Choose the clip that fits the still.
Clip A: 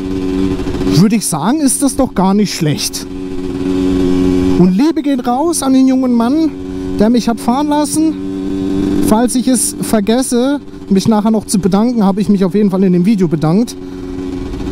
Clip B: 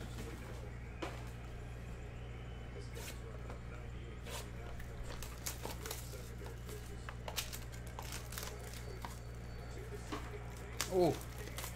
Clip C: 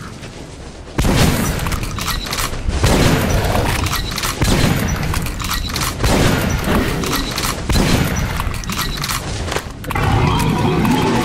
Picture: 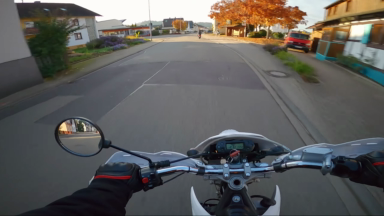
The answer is A